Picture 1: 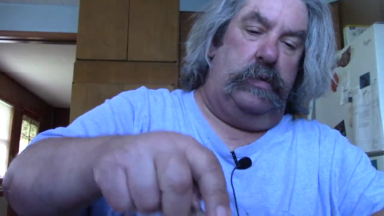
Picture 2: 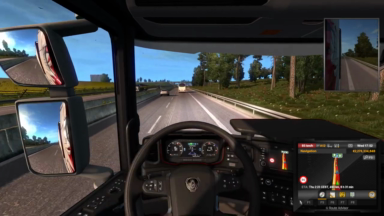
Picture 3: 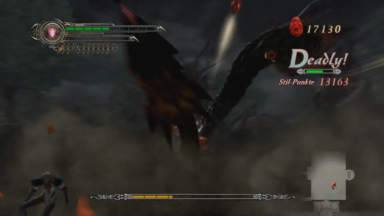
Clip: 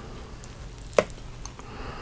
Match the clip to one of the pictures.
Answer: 1